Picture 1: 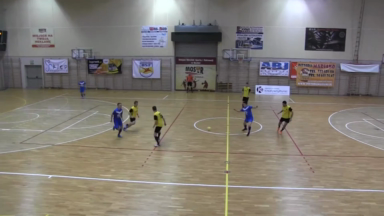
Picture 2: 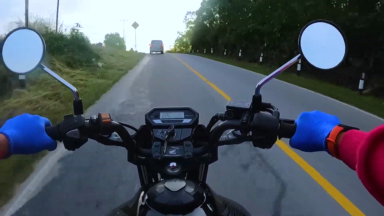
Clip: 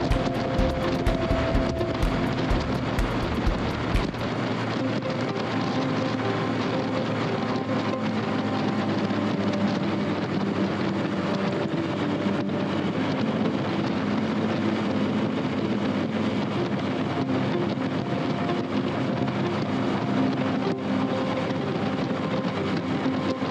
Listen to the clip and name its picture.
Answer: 2